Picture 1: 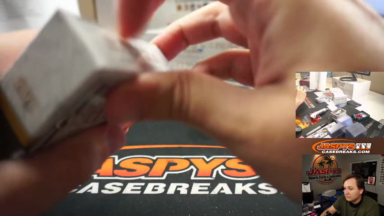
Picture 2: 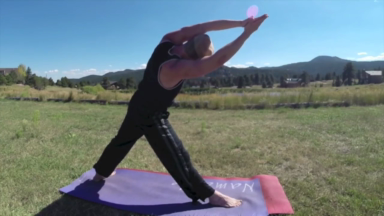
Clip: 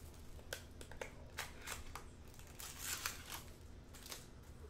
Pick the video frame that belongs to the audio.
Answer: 1